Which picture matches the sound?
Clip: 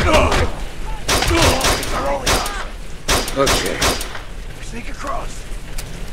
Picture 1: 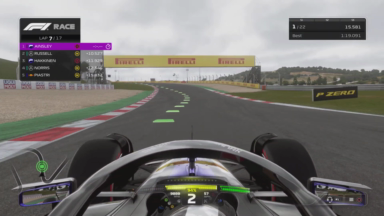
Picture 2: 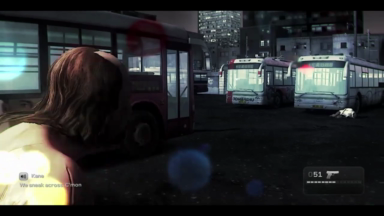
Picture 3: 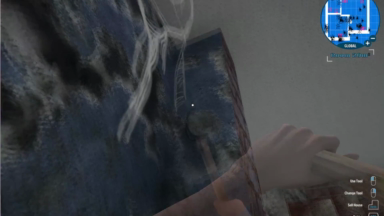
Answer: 2